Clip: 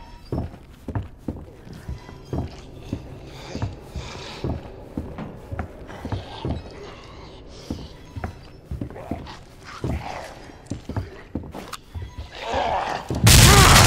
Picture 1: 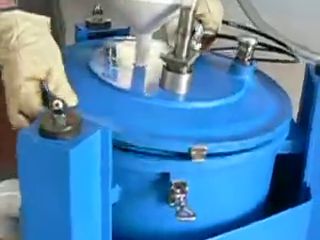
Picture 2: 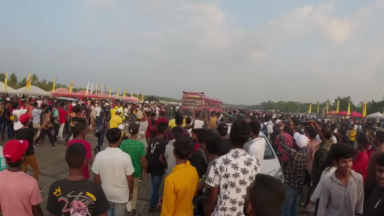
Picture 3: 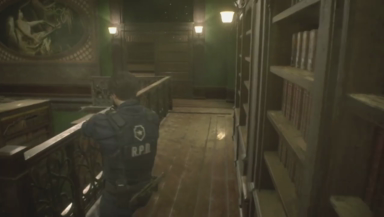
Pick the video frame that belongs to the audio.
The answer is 3